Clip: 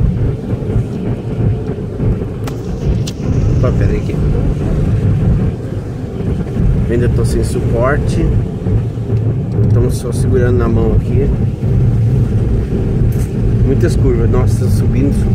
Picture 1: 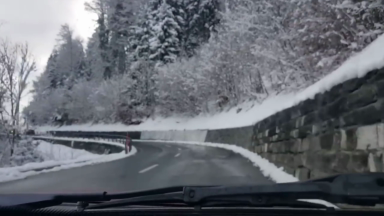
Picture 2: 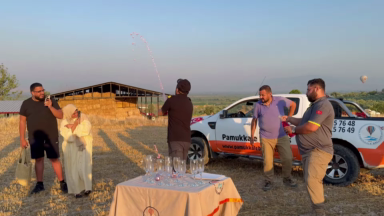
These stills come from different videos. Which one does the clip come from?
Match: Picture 1